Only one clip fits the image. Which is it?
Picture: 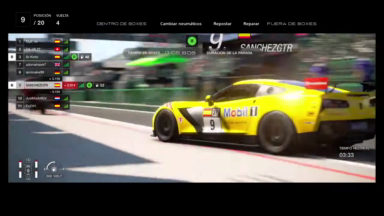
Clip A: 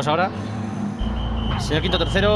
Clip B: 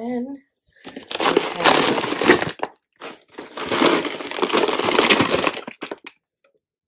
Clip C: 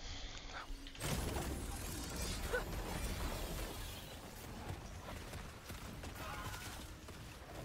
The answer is A